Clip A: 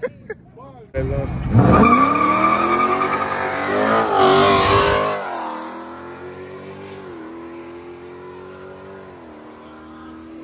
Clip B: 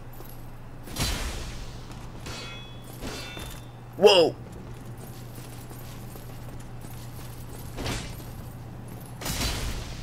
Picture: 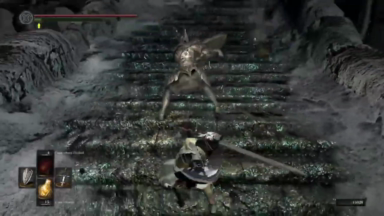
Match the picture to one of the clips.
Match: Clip B